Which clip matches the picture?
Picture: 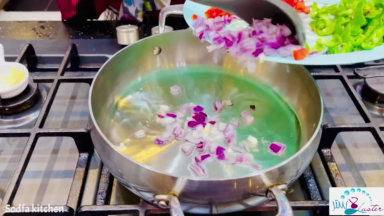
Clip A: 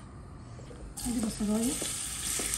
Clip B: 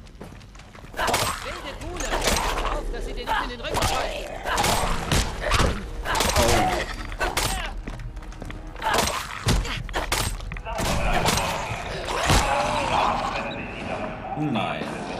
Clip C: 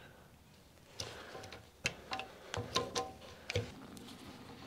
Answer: A